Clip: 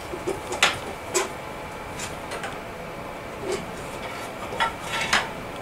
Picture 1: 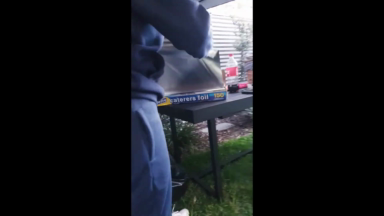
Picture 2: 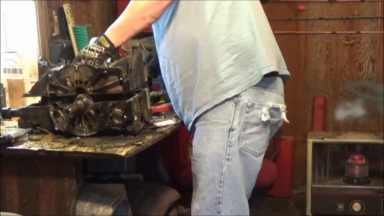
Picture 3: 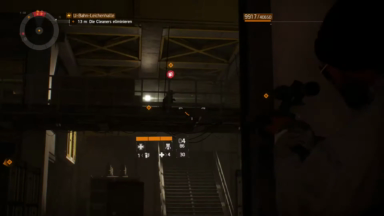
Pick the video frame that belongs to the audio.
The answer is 2